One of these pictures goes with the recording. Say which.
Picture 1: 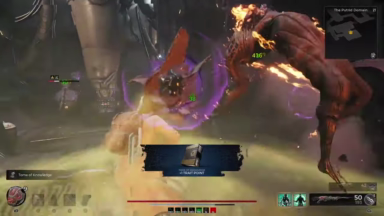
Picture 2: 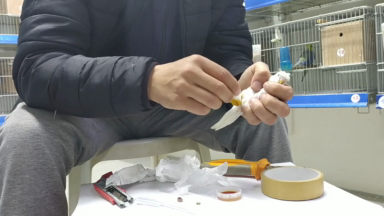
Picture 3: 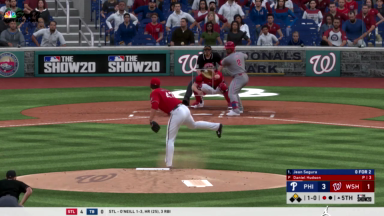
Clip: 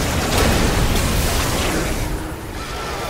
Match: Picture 1